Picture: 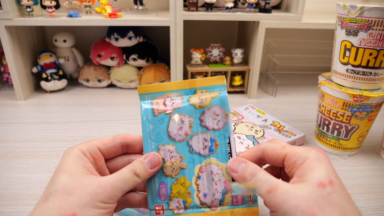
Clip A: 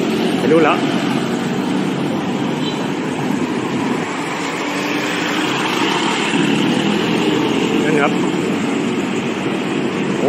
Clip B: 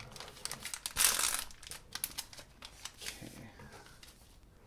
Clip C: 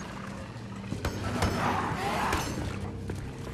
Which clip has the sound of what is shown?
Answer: B